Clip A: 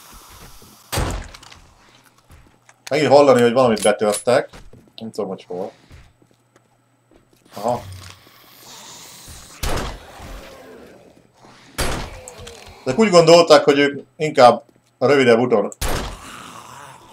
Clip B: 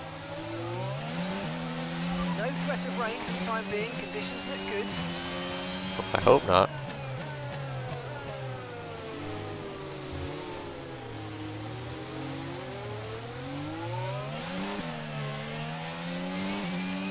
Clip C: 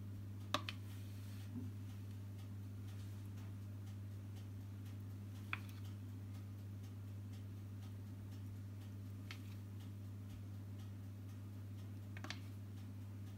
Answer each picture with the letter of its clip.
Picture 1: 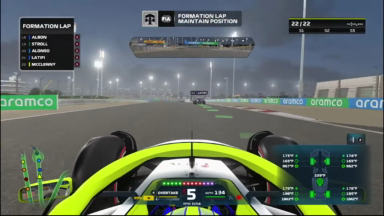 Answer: B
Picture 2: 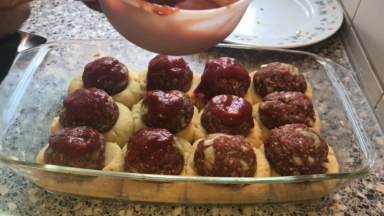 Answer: C